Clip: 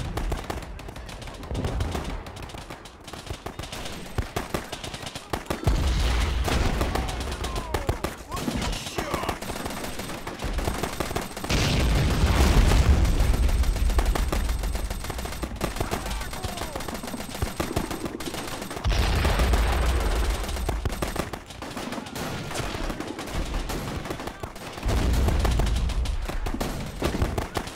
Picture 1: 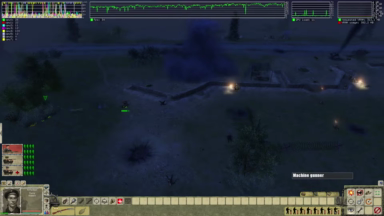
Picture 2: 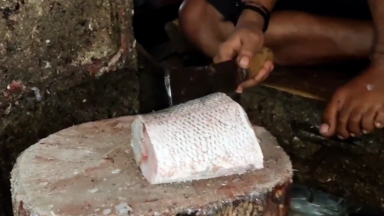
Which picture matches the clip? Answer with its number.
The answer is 1